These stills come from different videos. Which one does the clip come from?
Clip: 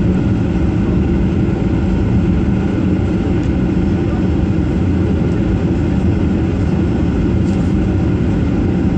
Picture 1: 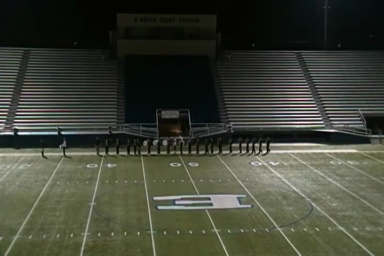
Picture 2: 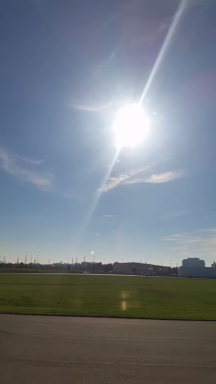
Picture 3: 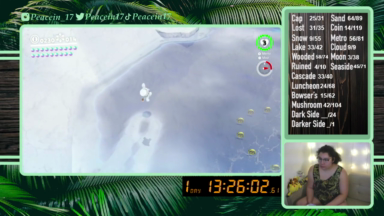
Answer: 2